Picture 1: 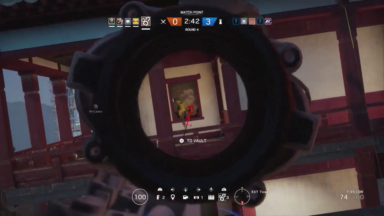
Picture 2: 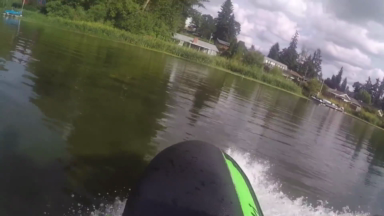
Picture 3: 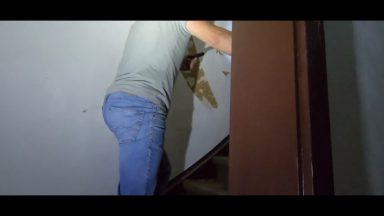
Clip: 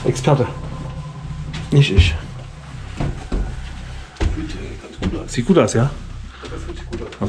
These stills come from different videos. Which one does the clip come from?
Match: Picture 3